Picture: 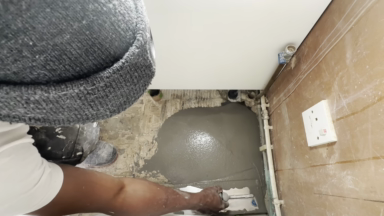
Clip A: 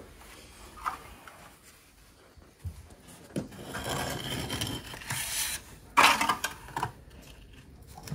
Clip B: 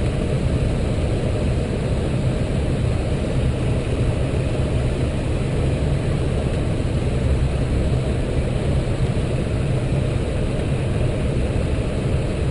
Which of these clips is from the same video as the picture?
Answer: A